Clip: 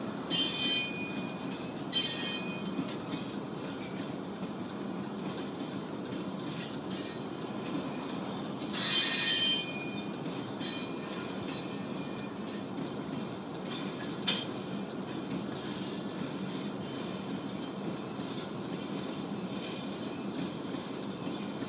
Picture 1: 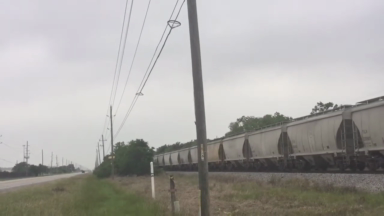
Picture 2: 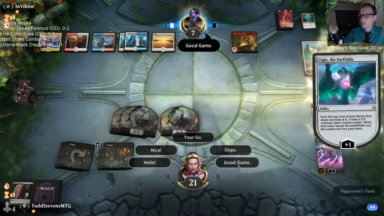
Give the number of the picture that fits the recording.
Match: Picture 1